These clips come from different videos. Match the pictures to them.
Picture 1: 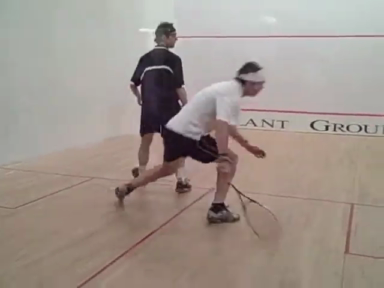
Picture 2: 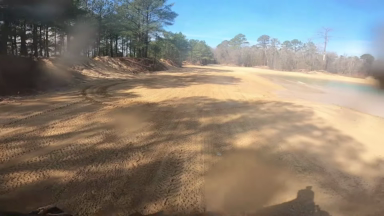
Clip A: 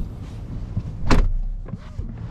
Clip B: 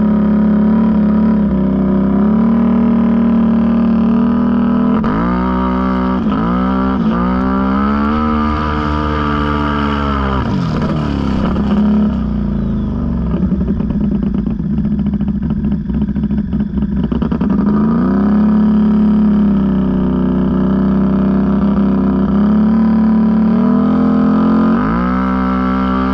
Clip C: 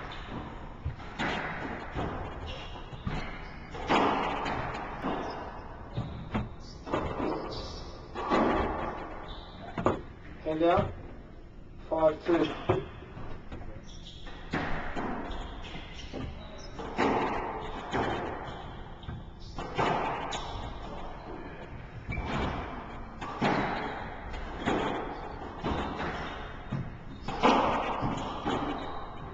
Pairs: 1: C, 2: B